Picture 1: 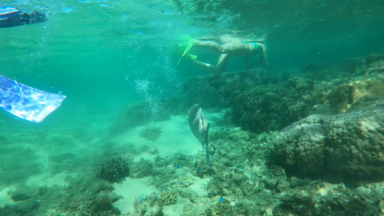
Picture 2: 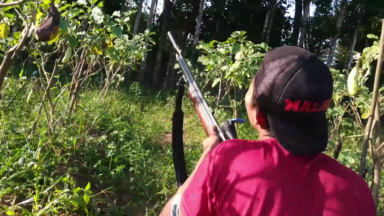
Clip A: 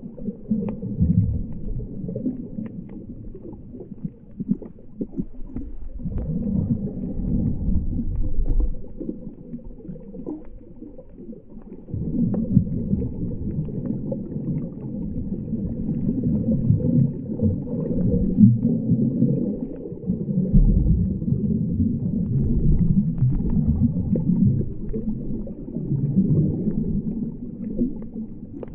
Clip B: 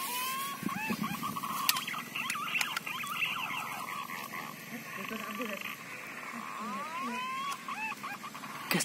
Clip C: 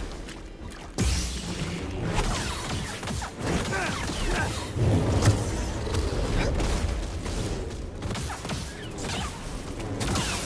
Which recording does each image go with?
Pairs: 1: A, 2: B